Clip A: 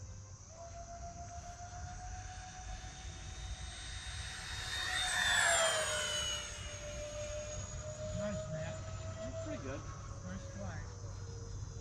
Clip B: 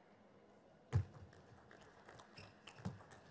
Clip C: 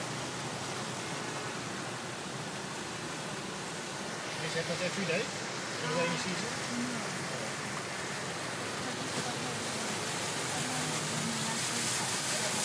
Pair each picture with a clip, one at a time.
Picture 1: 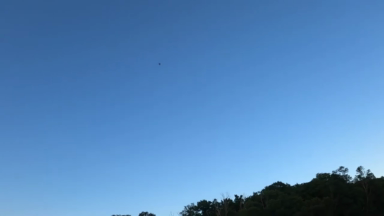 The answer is A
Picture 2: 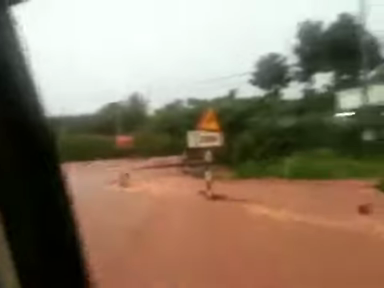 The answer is C